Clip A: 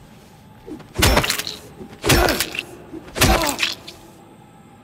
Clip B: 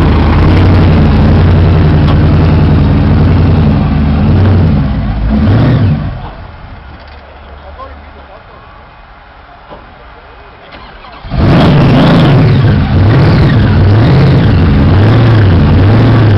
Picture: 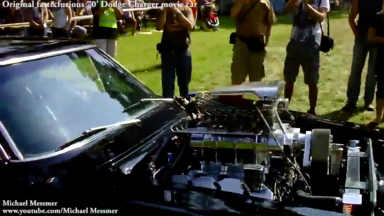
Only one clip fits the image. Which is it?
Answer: B